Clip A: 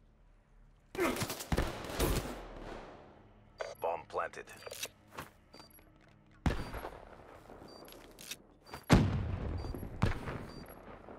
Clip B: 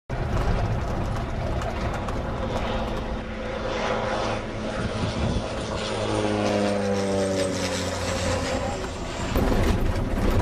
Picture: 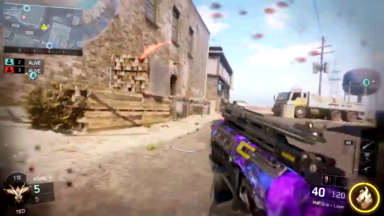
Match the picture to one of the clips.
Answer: A